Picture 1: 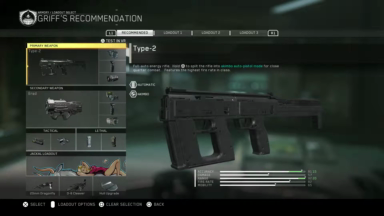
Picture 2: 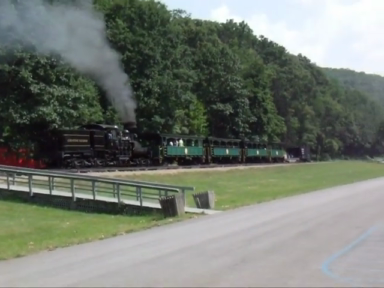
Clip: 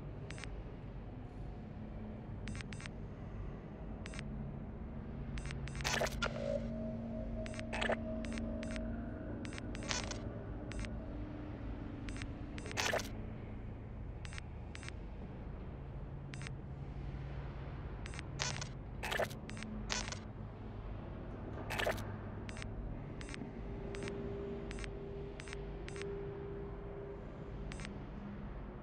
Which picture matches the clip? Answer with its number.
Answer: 1